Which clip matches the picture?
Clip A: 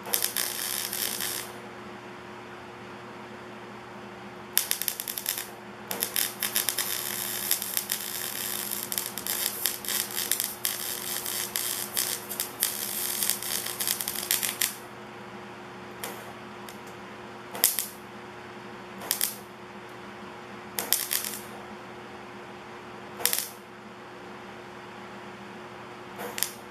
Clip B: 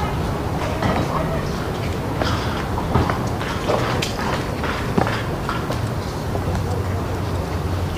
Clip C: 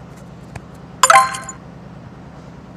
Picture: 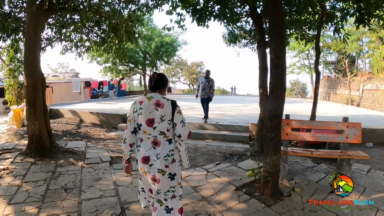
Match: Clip B